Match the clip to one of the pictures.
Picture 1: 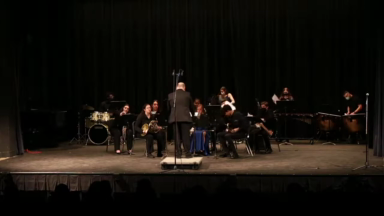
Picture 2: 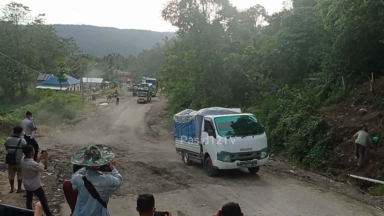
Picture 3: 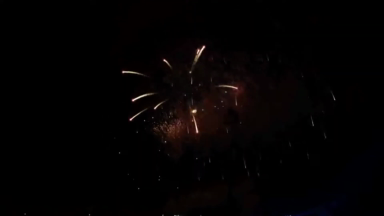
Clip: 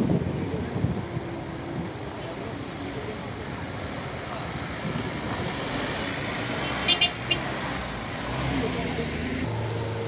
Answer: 2